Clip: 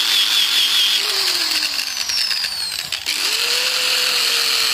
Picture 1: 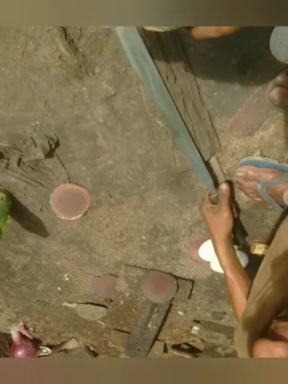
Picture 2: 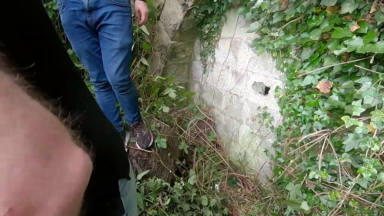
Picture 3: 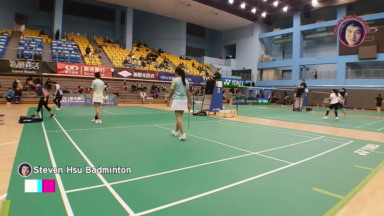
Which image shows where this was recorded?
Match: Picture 1